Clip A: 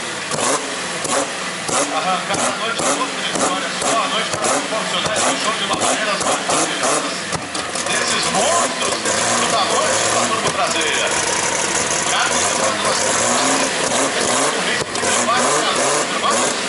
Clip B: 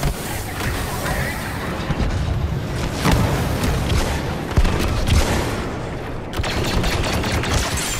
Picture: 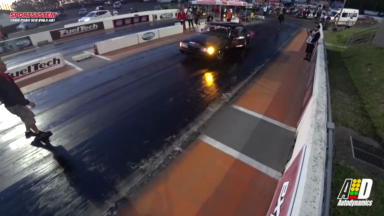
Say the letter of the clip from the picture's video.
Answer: A